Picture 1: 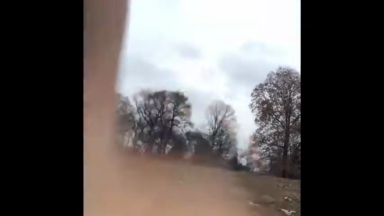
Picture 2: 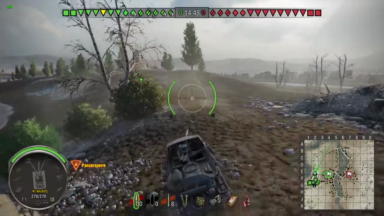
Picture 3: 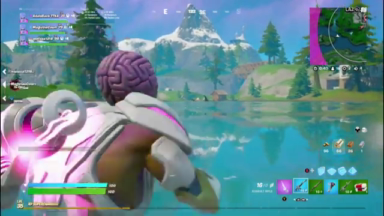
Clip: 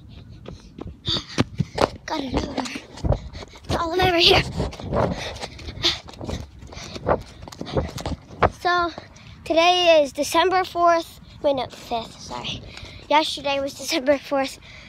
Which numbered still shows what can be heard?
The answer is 1